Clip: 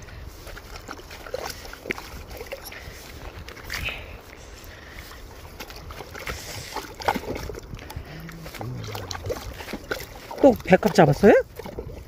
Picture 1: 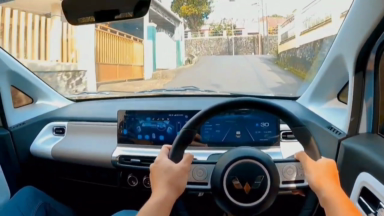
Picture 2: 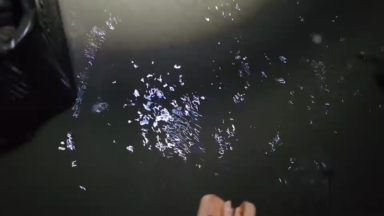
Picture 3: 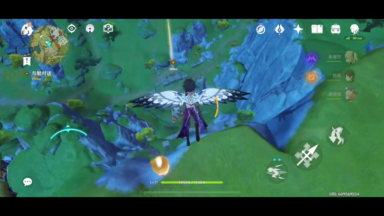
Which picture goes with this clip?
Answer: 2